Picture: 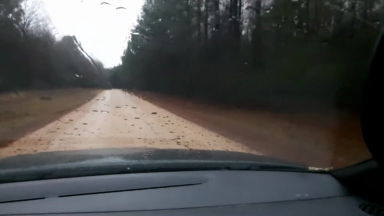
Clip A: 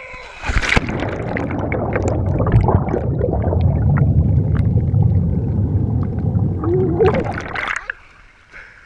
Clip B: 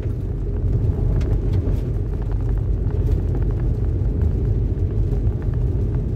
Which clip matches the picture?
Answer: B